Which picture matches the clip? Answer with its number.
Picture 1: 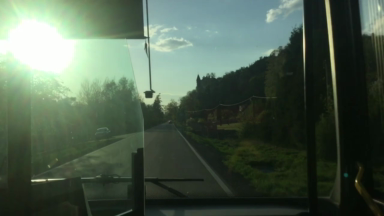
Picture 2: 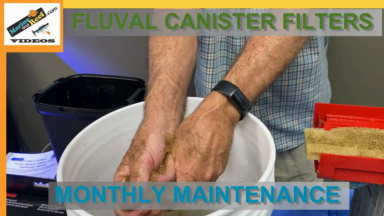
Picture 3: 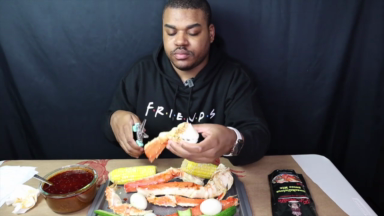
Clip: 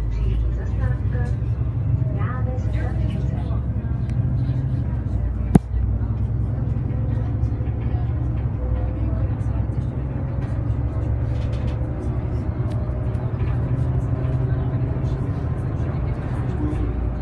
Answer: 1